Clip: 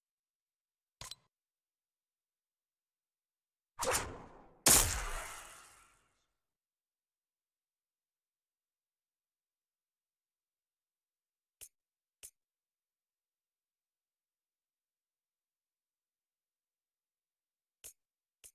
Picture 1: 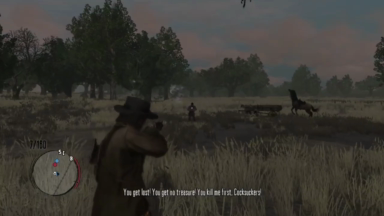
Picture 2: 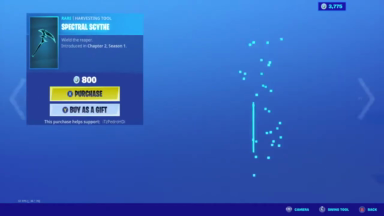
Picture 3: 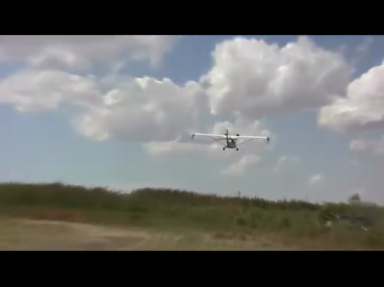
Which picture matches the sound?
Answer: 2